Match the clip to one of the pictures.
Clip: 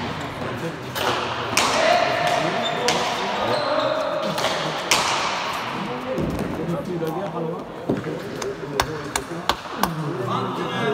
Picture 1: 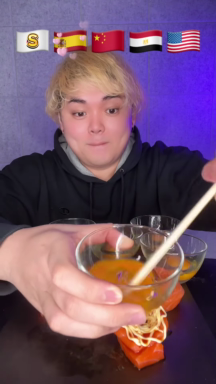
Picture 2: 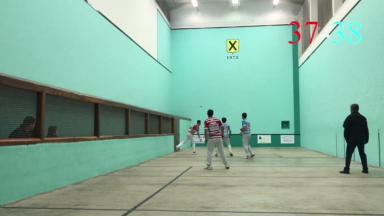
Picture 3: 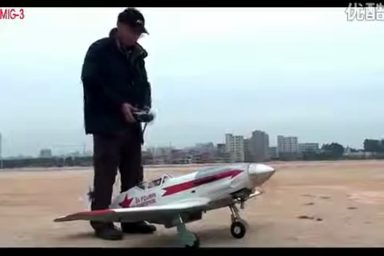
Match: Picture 2